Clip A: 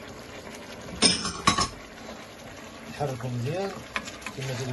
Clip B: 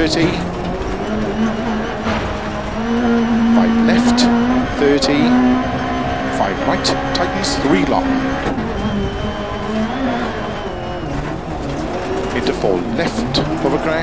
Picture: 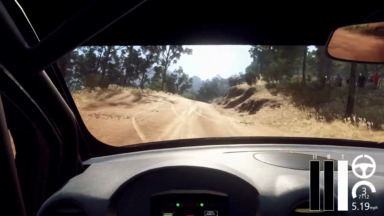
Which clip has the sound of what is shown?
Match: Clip B